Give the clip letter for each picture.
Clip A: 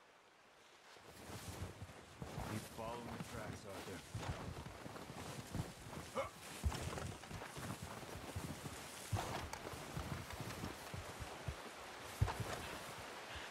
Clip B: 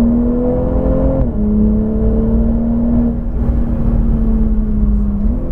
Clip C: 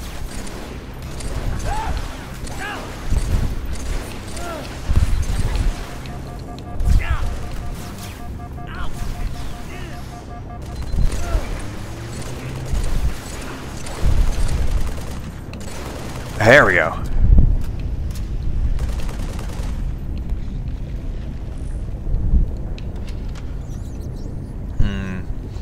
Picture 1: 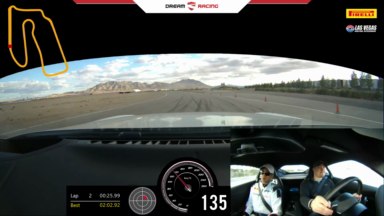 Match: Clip B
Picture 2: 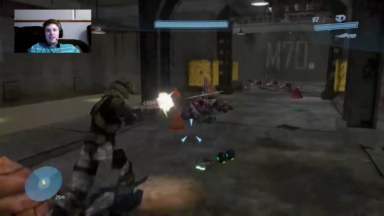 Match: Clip C